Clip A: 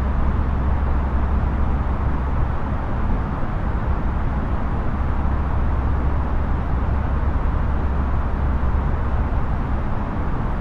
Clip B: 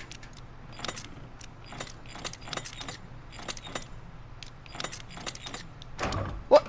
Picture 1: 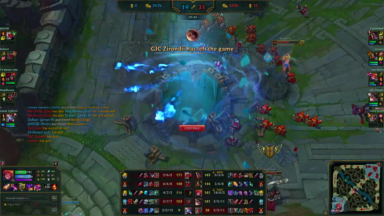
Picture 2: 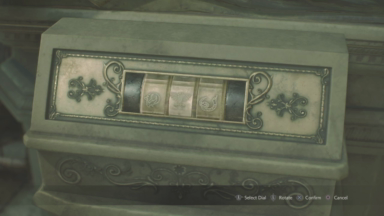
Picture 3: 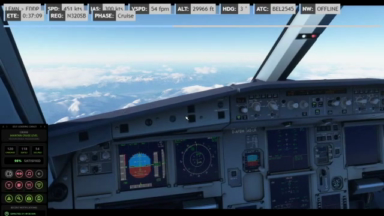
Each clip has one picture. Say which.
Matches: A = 3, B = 2